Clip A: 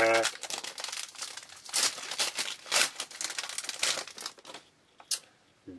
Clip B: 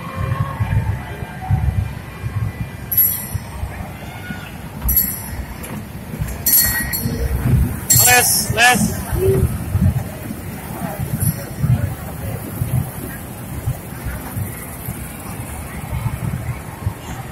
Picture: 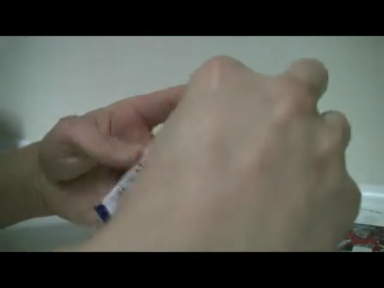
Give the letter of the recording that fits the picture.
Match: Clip A